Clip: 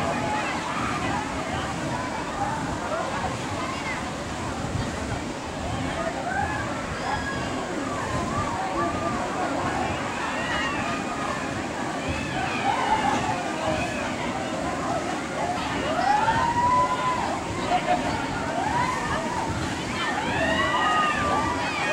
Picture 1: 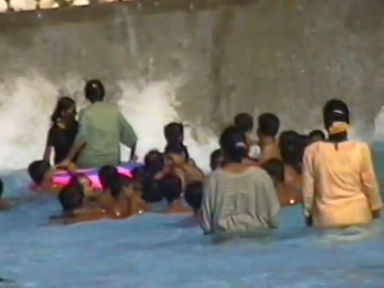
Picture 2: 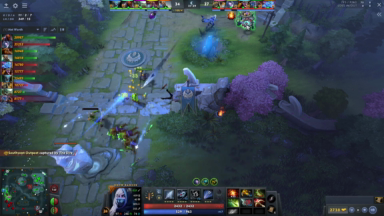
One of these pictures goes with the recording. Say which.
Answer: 1